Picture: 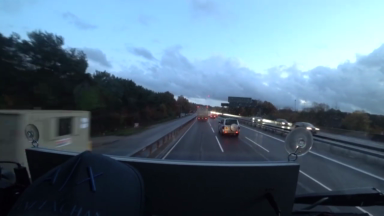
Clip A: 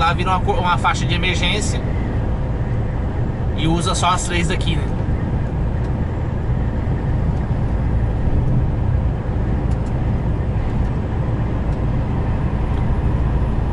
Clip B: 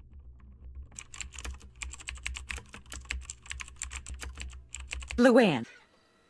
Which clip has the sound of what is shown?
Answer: A